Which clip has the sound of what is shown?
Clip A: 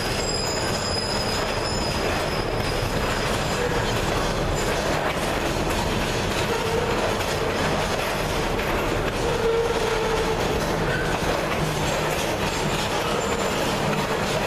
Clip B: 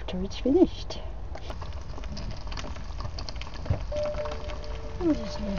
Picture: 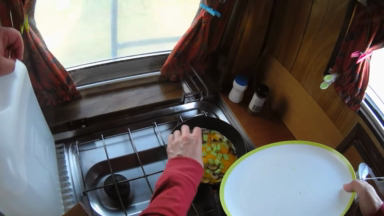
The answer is B